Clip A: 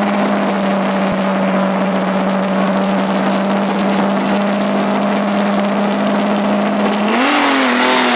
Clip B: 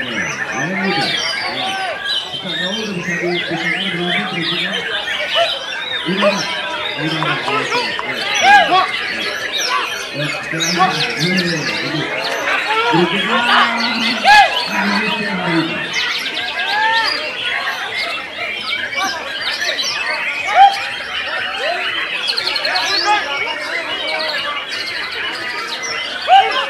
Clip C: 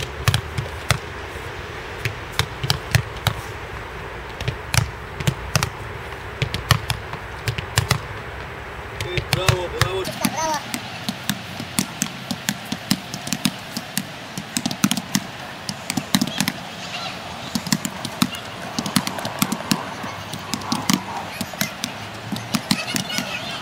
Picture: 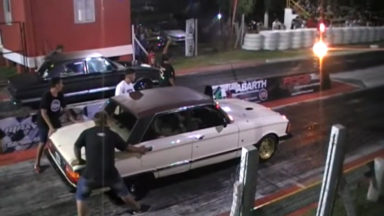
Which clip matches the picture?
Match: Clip A